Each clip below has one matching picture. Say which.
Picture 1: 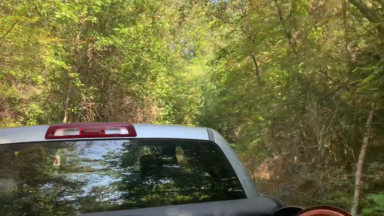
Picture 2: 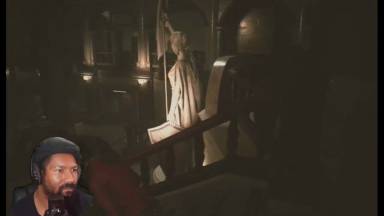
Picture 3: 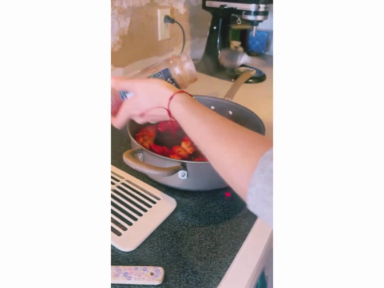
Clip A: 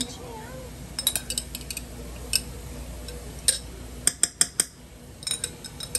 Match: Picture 3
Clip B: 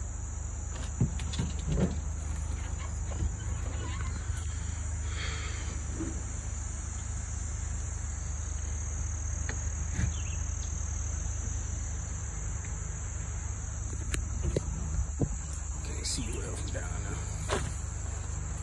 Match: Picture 1